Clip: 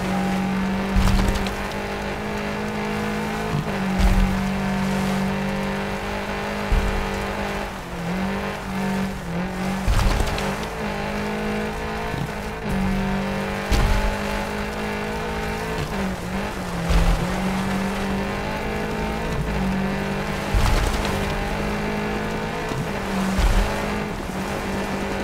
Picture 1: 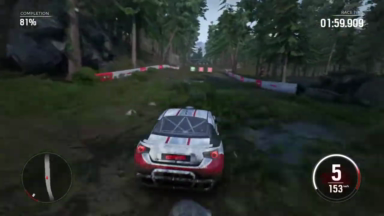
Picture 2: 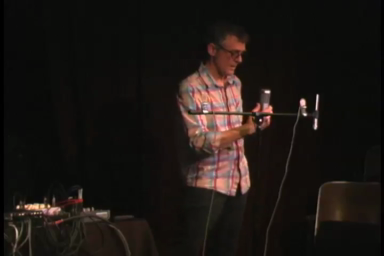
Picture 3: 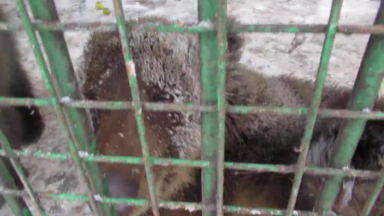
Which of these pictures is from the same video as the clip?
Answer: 1